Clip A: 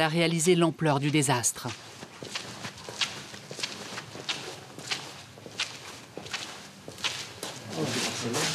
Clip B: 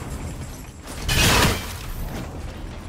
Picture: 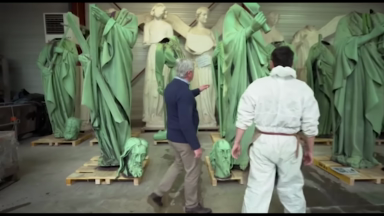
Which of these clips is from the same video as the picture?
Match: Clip A